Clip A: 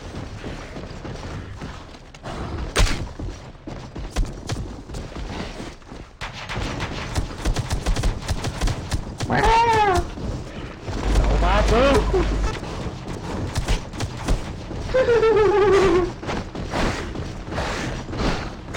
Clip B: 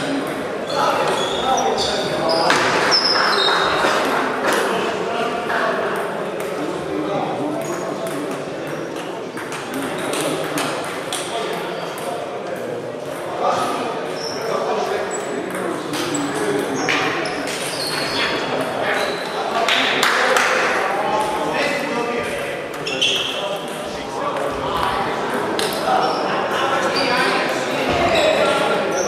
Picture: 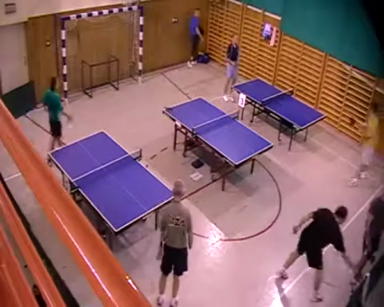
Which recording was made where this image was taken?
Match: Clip B